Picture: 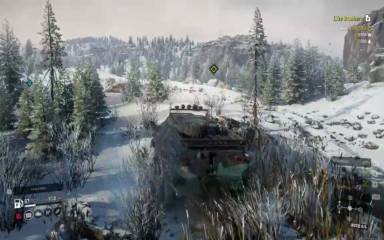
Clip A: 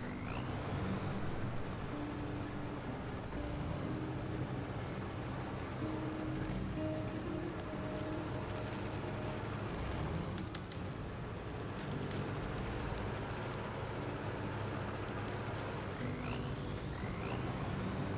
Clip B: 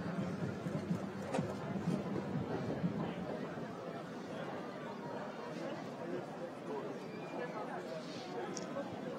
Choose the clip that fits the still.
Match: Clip A